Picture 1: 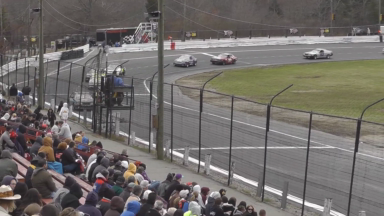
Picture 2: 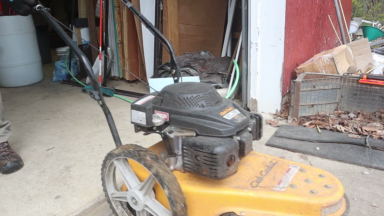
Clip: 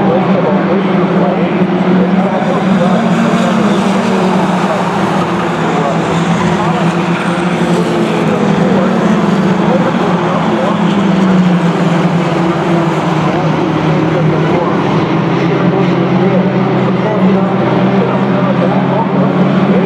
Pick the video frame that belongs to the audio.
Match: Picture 1